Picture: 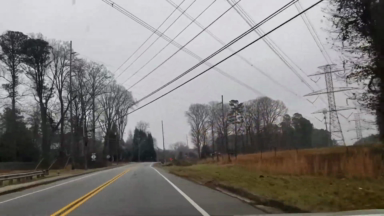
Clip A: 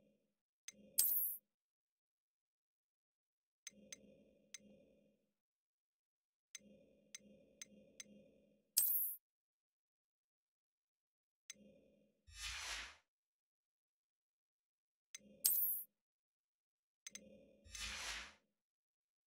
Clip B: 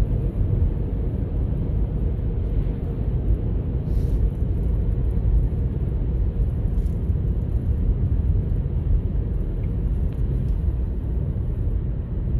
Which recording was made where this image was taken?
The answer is B